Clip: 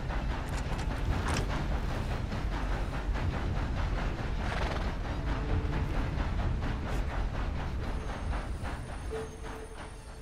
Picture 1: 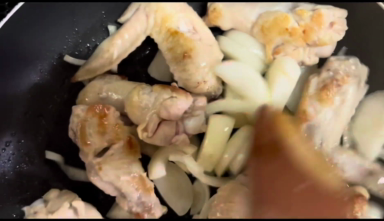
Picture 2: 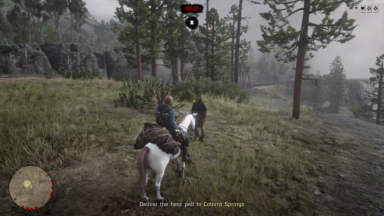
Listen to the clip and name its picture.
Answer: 2